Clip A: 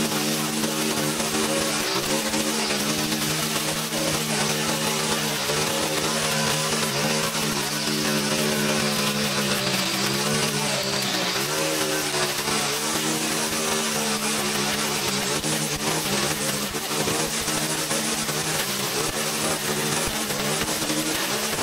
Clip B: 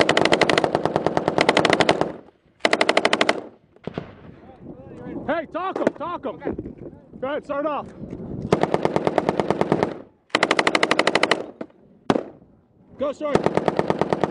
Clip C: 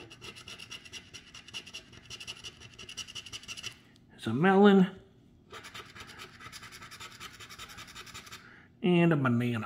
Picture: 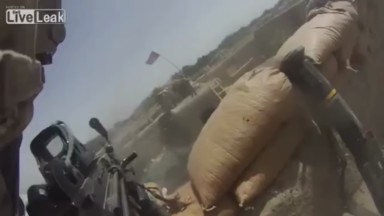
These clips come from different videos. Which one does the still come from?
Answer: B